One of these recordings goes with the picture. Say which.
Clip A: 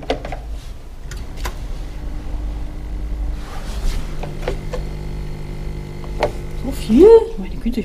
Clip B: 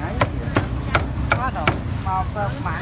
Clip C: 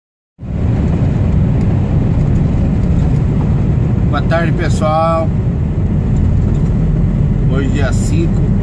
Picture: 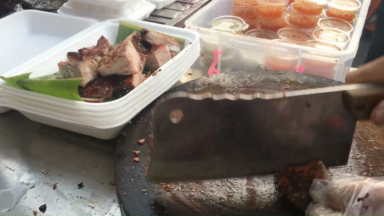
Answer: B